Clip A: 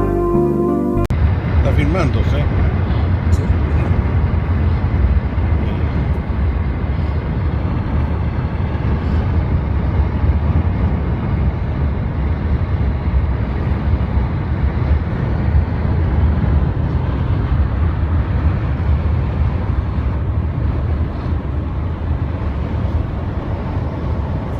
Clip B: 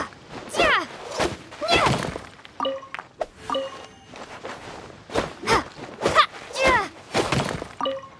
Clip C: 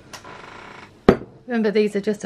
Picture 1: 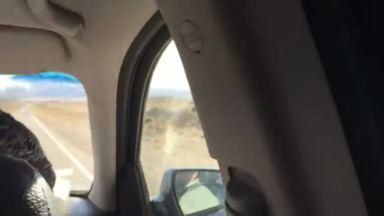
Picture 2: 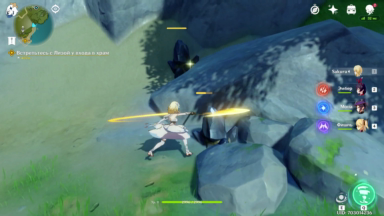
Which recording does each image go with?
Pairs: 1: A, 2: B